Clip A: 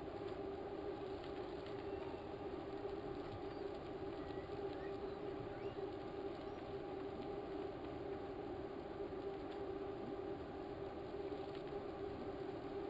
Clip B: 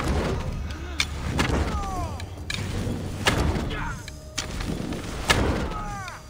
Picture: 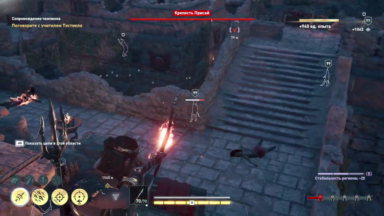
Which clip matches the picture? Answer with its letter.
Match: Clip B